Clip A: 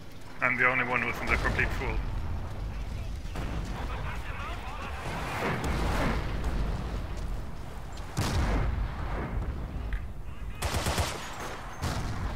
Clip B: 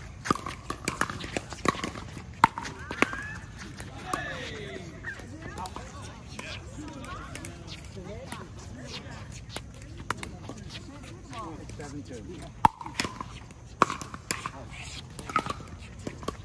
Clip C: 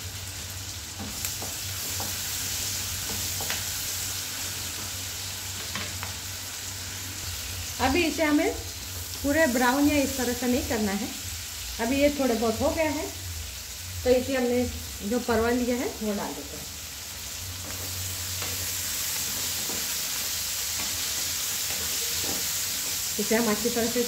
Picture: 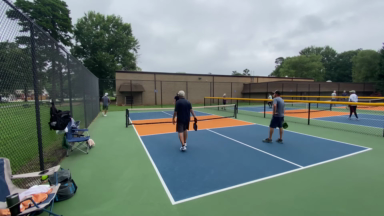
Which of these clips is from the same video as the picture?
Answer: B